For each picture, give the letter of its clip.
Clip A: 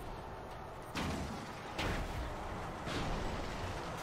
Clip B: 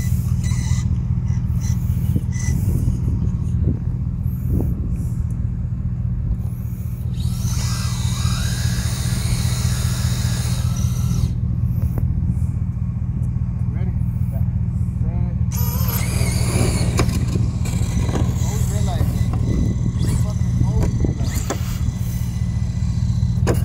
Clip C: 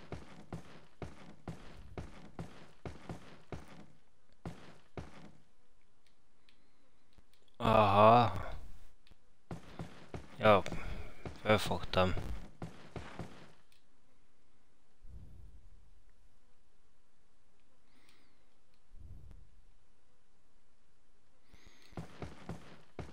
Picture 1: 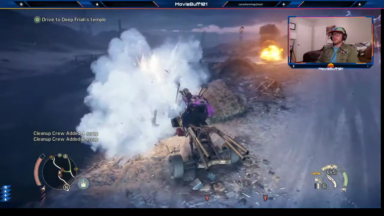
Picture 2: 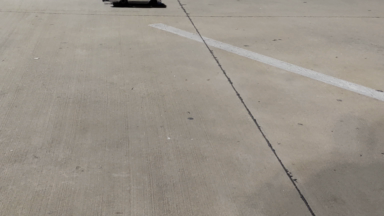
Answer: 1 A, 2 B